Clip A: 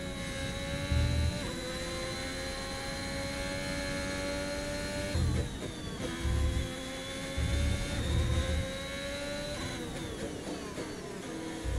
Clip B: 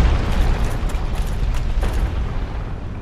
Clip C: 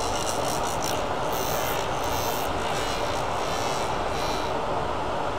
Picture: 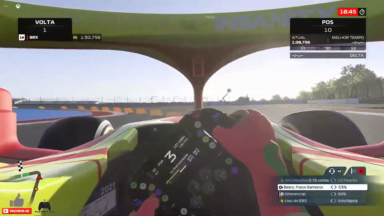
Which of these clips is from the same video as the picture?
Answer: A